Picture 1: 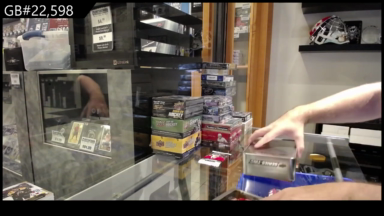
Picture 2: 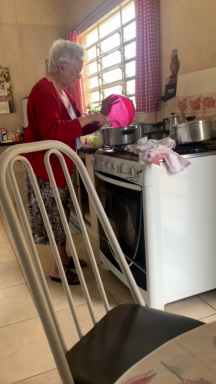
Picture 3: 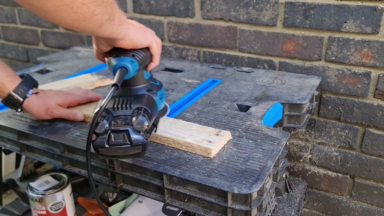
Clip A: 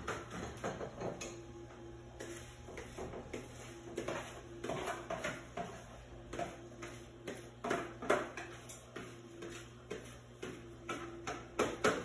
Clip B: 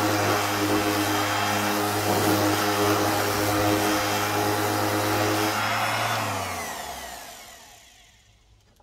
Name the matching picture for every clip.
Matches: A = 2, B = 3